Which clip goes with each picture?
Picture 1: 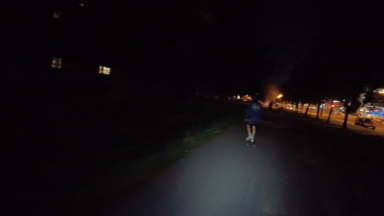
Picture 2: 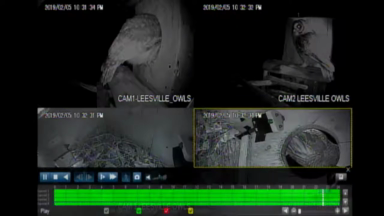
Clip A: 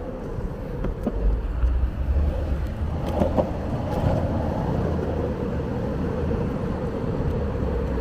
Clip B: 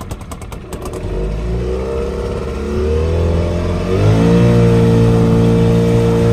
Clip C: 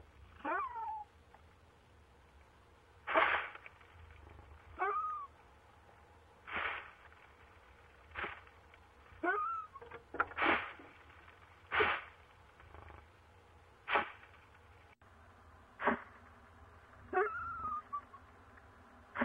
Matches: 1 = A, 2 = C